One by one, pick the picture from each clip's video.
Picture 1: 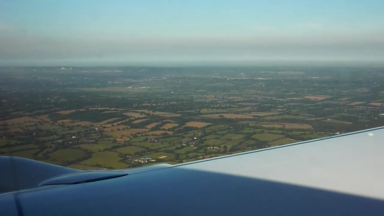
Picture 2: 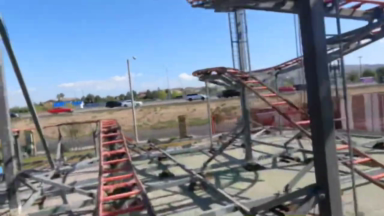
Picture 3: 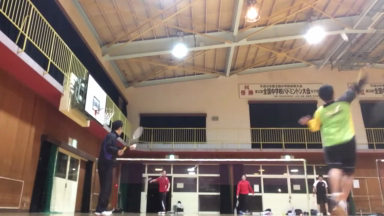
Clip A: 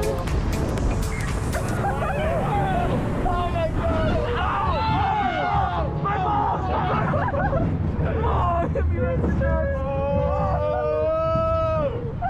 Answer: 2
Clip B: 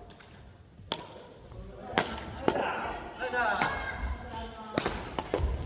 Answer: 3